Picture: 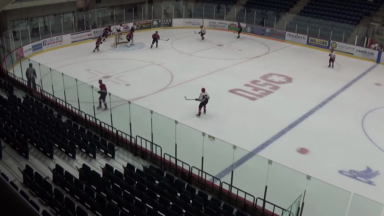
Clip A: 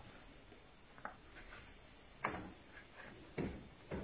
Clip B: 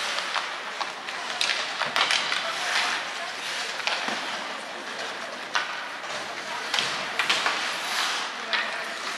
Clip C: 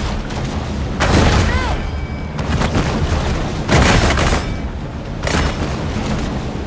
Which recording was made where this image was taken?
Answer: B